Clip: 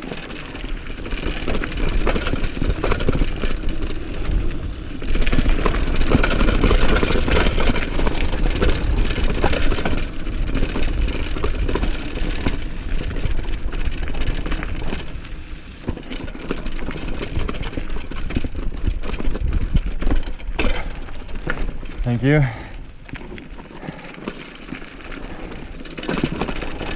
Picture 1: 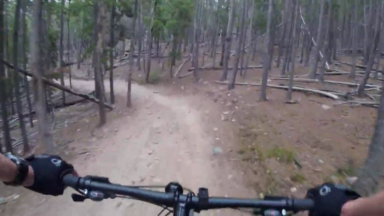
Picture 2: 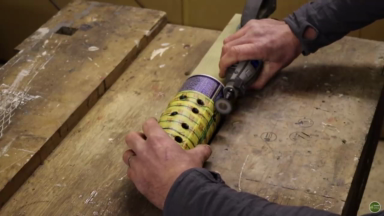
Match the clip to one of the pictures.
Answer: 1